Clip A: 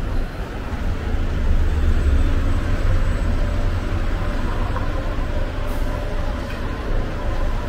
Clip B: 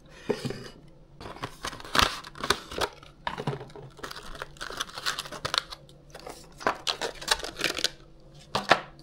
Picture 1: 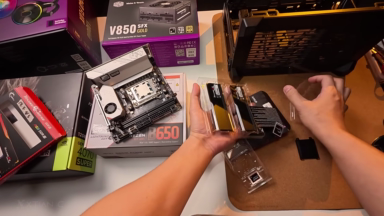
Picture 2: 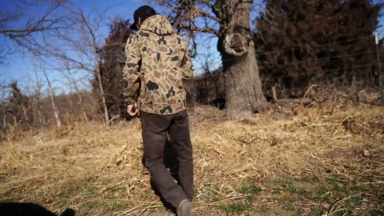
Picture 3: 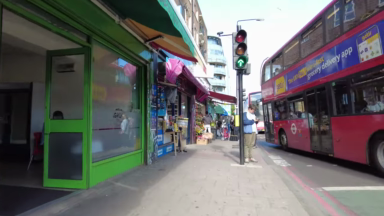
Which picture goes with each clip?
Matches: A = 3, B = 1